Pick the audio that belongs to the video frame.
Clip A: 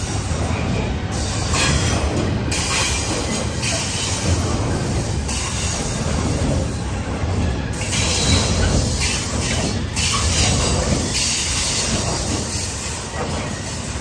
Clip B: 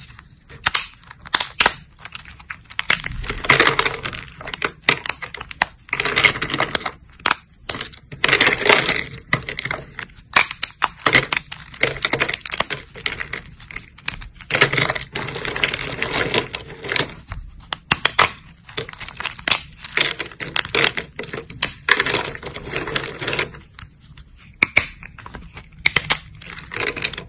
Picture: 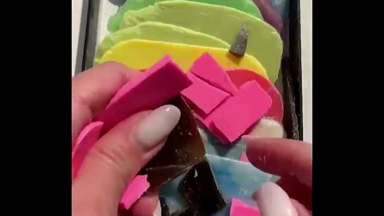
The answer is B